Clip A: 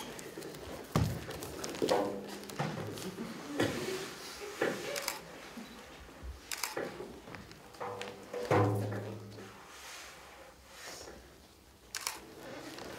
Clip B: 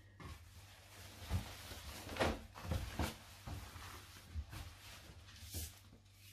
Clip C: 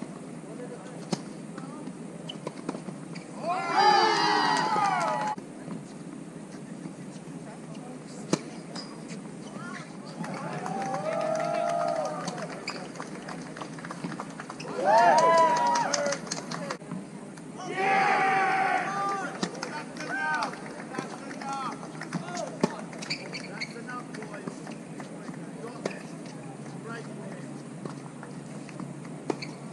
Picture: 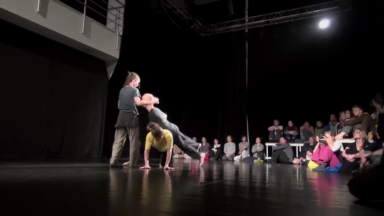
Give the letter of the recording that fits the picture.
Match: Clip A